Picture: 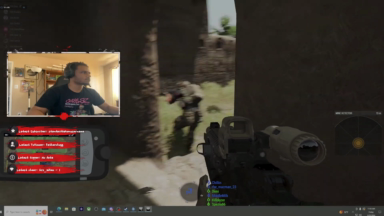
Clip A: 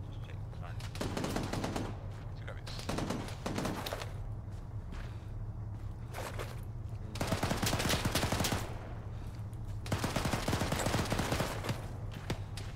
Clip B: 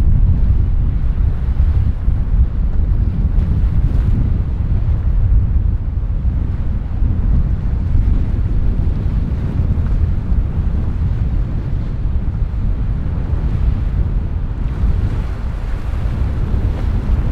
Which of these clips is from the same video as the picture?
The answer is A